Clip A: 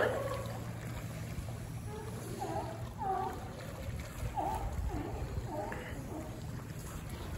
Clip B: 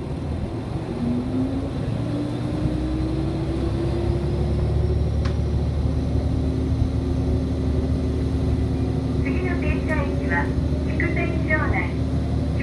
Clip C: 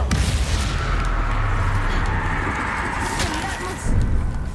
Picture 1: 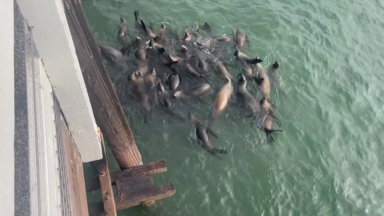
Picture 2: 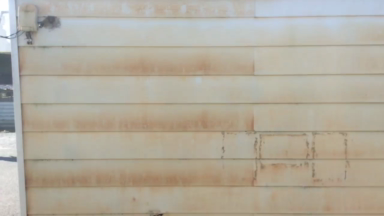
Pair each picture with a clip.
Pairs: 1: A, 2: B